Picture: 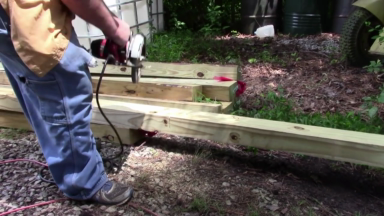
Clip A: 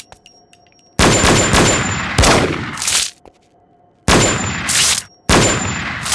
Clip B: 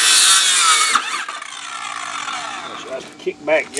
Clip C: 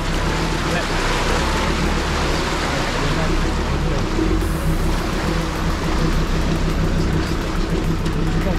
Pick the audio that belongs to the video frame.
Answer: B